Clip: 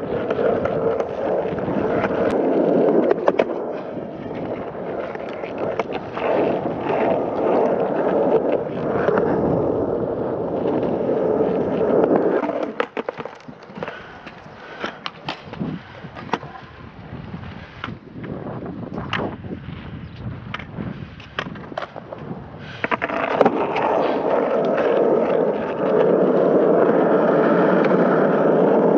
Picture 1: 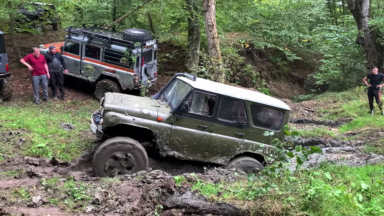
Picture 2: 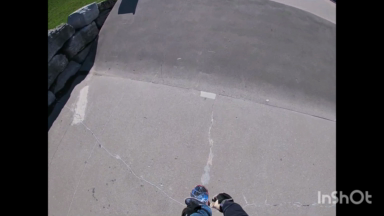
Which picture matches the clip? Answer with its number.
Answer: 2